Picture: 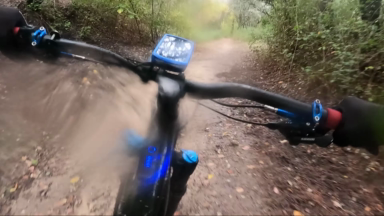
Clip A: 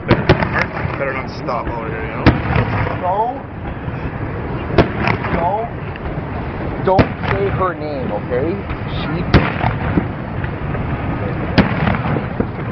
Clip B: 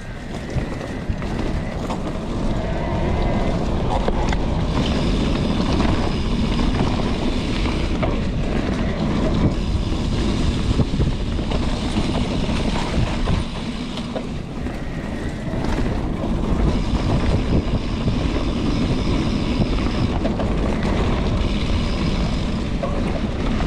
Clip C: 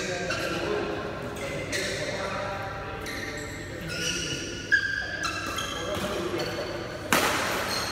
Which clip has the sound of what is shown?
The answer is B